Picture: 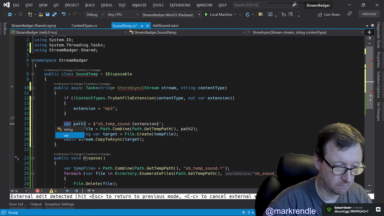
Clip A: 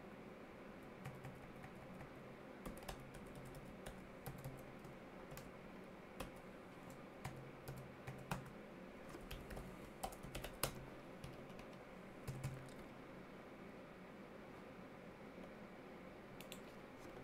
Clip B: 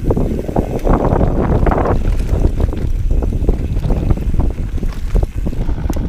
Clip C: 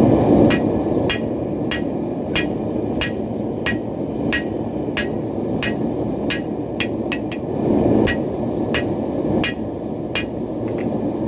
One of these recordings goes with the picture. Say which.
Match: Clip A